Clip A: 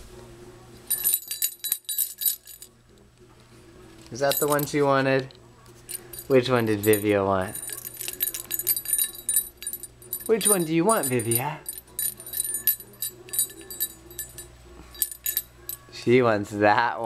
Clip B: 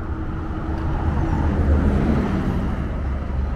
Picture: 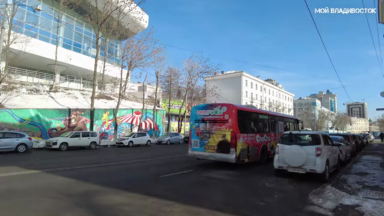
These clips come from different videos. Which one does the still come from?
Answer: B